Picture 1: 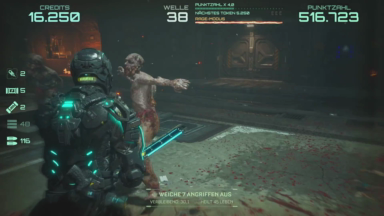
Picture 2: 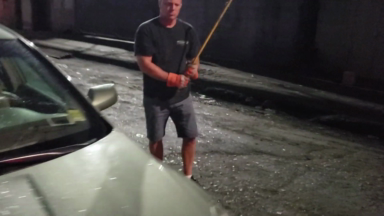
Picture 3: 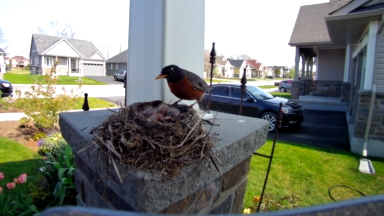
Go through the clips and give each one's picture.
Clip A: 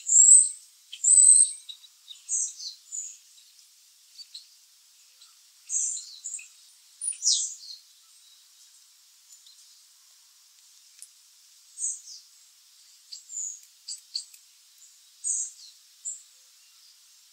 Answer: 3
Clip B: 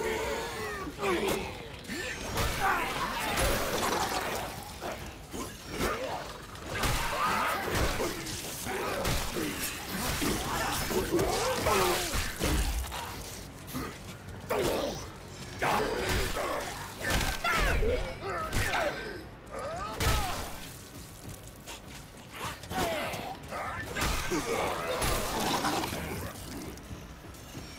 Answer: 1